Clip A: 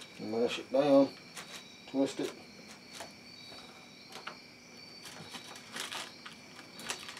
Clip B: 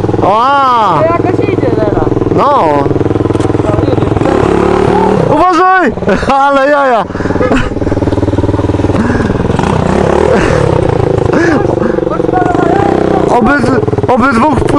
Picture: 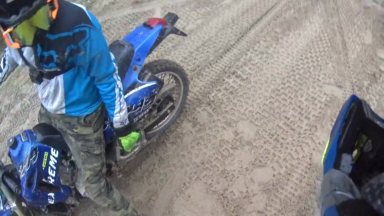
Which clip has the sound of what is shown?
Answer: B